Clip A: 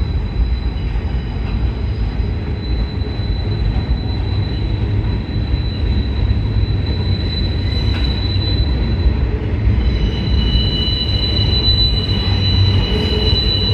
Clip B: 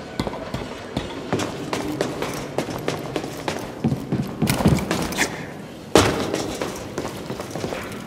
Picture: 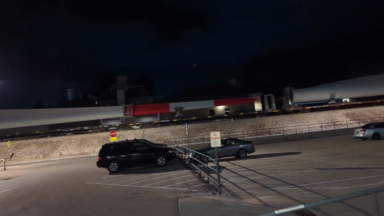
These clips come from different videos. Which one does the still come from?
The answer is A